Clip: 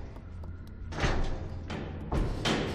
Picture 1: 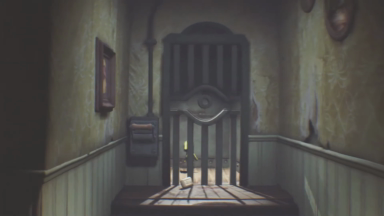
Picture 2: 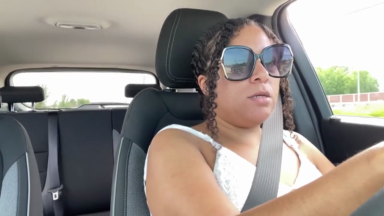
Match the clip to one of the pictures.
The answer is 1